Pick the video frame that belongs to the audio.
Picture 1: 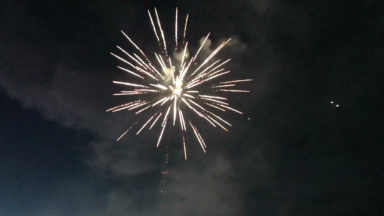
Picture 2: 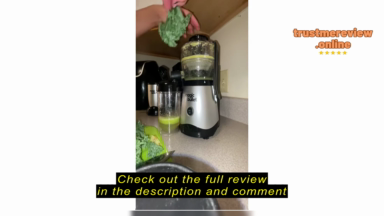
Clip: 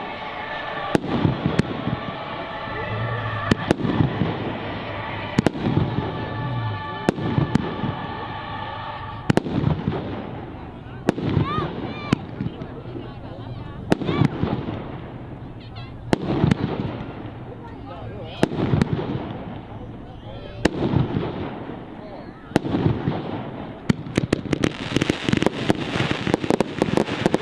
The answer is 1